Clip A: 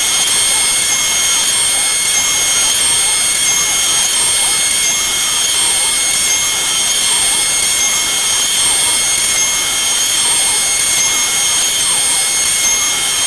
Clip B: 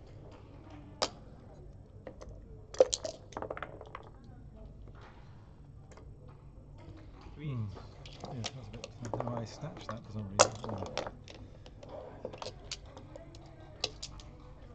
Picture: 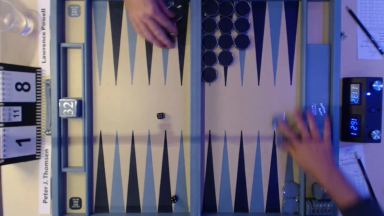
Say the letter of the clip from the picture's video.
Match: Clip B